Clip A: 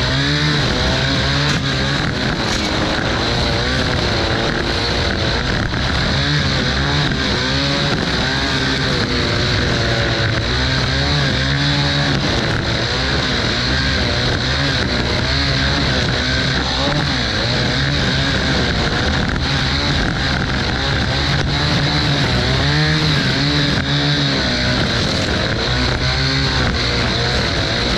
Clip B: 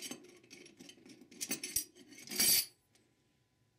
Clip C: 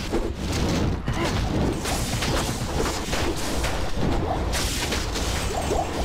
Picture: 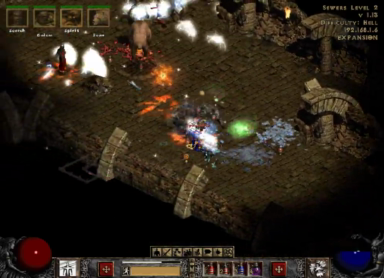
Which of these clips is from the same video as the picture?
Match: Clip C